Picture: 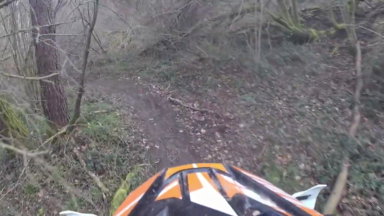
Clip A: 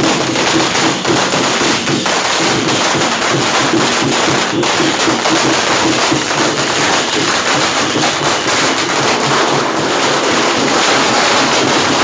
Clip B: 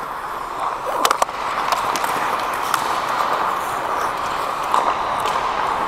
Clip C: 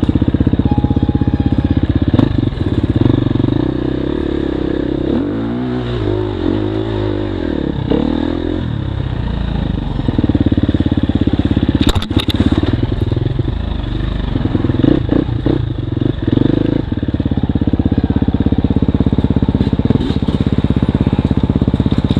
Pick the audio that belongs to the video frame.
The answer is C